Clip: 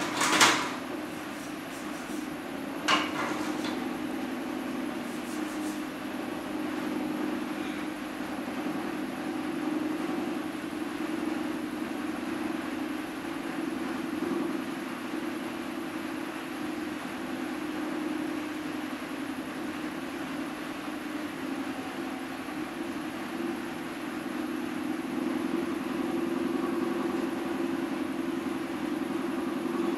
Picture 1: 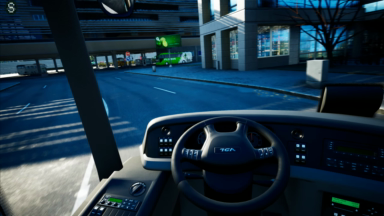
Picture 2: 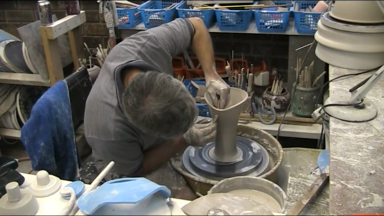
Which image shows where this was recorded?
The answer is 2